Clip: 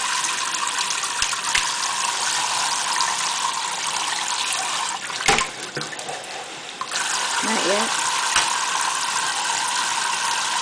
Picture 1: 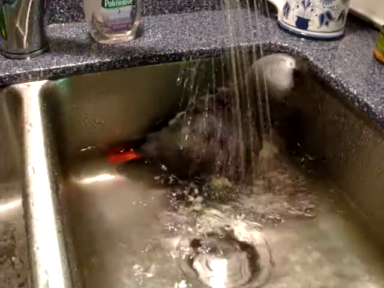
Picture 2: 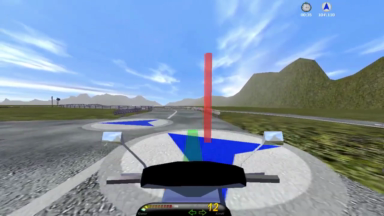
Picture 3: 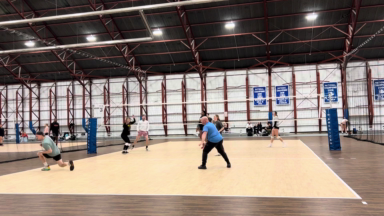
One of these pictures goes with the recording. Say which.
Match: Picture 1